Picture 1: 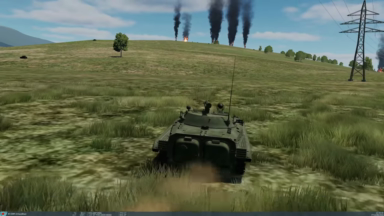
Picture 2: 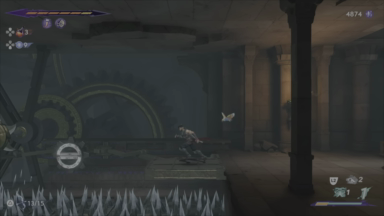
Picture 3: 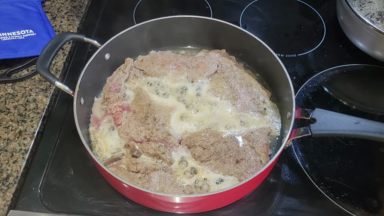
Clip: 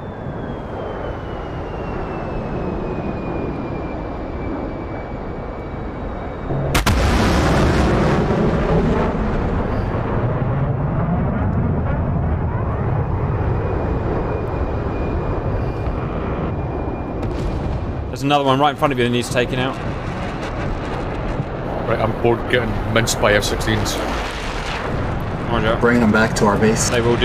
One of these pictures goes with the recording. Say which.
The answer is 1